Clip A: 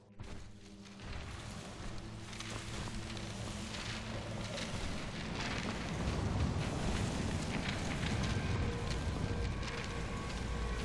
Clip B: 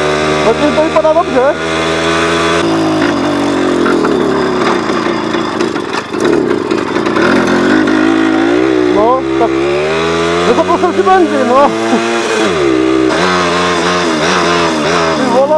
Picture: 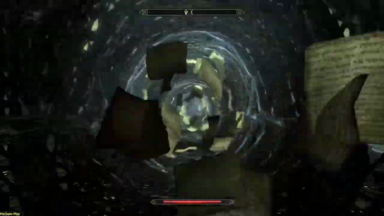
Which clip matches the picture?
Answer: A